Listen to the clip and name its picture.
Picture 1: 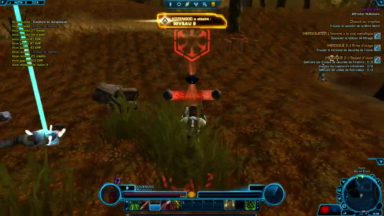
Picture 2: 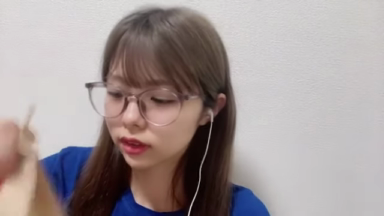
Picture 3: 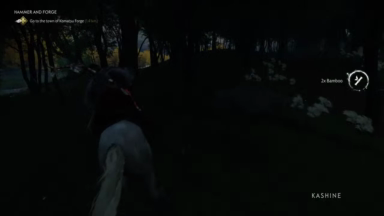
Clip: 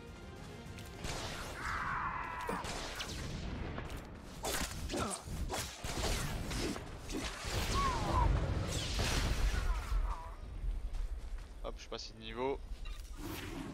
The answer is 1